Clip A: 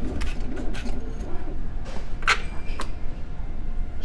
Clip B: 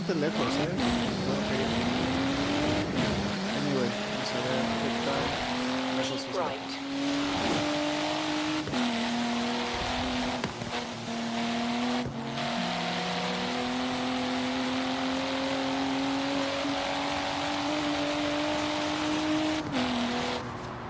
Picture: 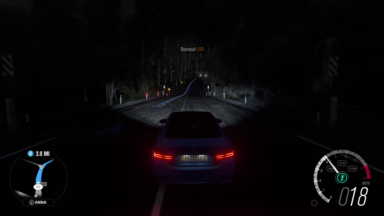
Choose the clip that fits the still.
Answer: B